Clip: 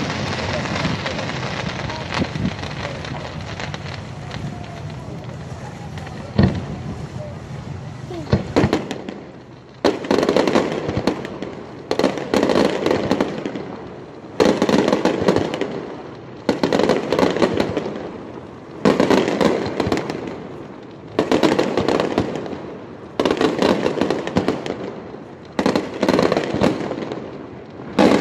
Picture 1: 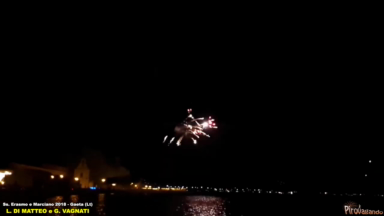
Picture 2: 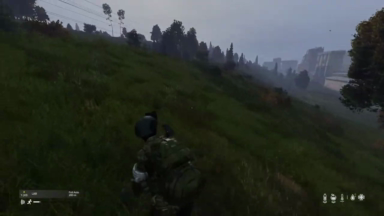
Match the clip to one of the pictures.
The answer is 1